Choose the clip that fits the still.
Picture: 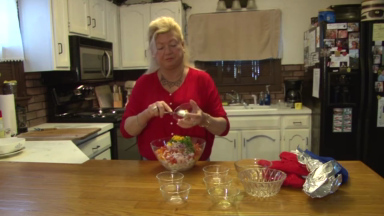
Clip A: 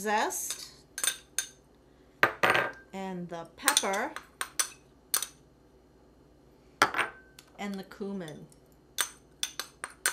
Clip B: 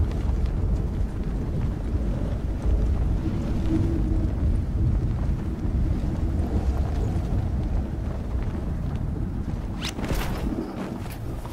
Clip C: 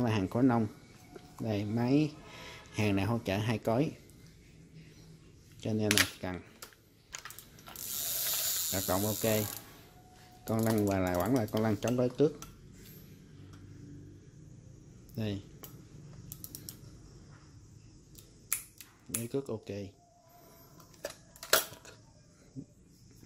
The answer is A